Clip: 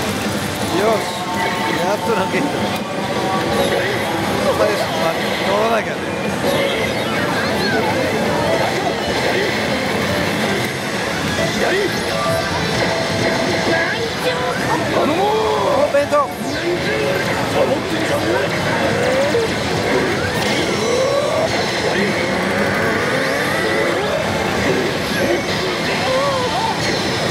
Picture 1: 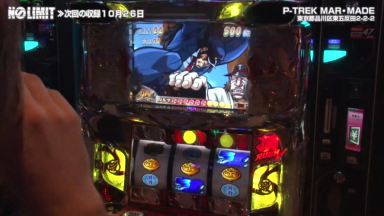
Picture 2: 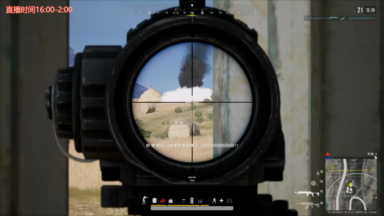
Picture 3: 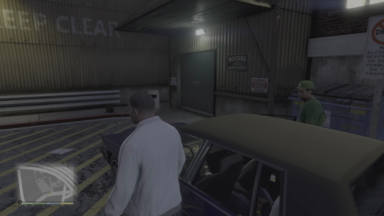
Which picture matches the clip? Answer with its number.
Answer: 1